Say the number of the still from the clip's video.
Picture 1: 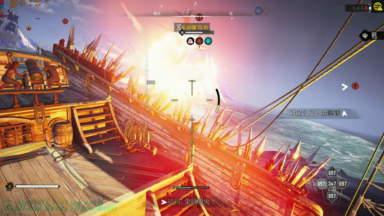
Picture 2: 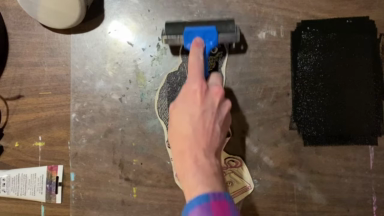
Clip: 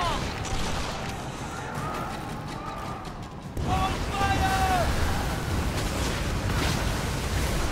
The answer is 1